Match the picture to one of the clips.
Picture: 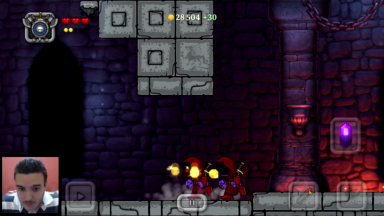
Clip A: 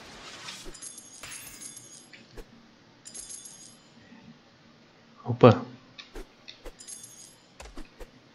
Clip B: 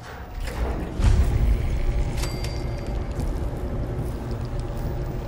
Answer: A